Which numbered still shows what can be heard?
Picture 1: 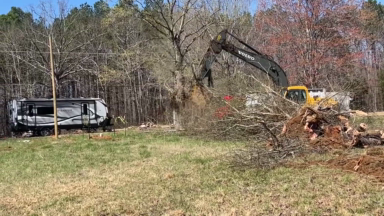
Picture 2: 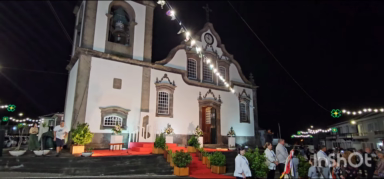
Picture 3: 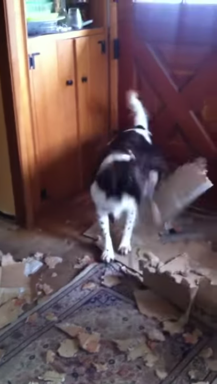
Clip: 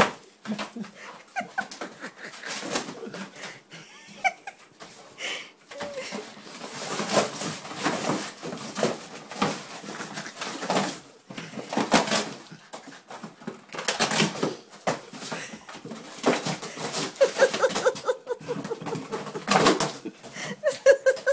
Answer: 3